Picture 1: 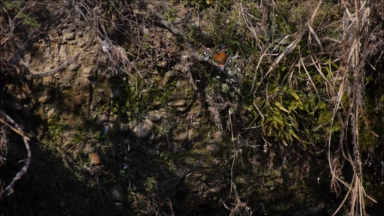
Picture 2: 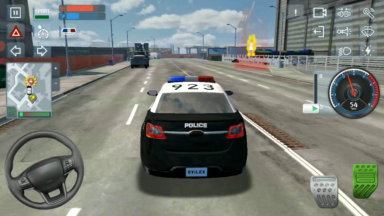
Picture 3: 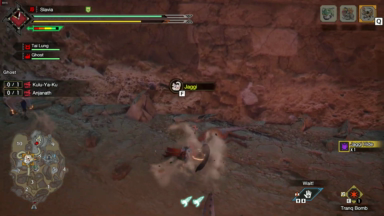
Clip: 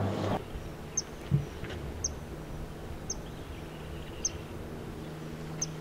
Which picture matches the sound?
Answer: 1